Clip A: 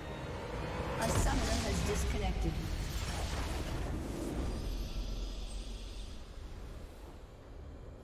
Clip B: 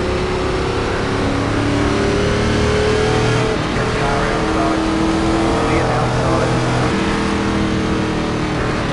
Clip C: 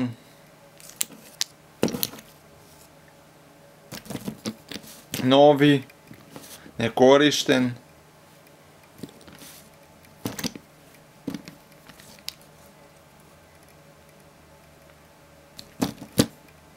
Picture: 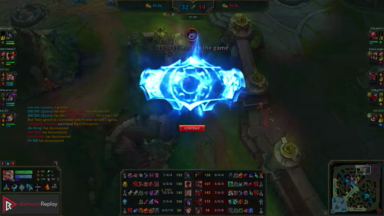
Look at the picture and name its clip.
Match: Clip A